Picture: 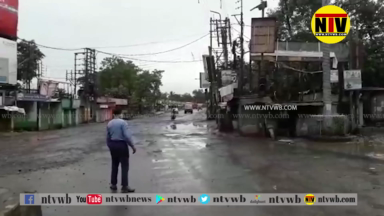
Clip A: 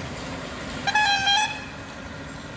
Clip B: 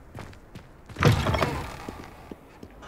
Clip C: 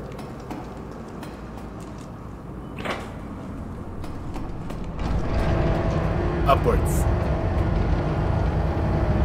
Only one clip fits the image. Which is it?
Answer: A